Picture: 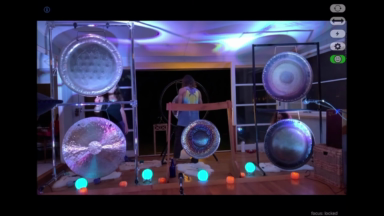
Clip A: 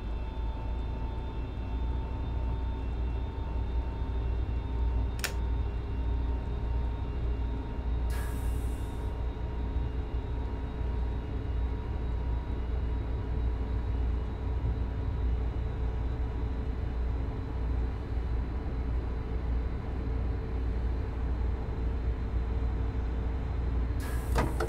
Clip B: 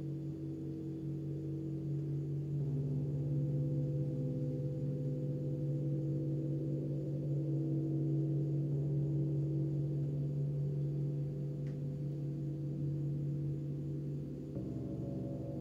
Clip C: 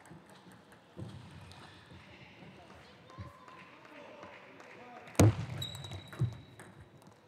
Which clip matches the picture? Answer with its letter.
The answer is B